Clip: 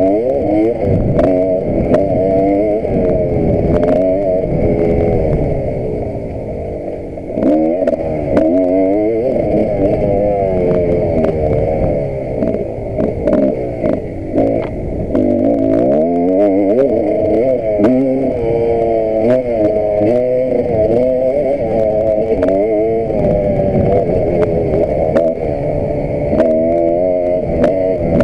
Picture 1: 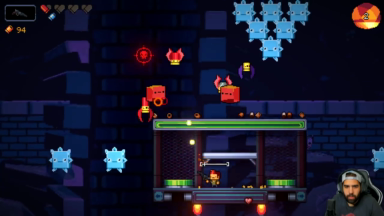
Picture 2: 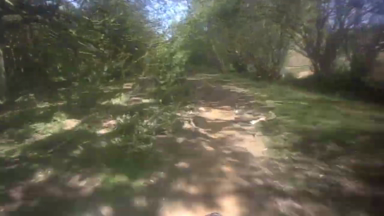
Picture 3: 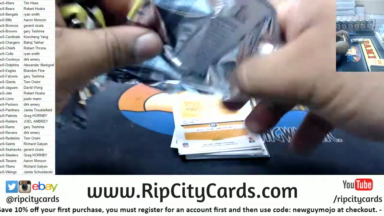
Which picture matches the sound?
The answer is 2